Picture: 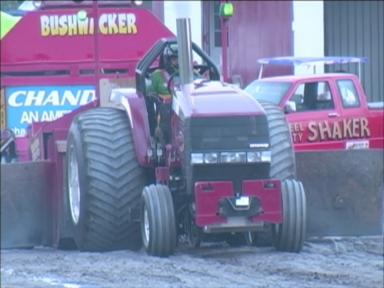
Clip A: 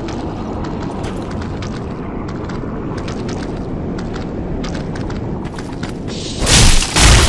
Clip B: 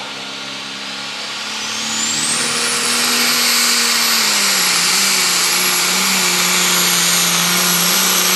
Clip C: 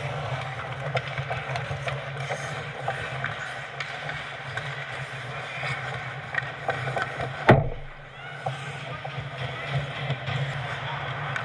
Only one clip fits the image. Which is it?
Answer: B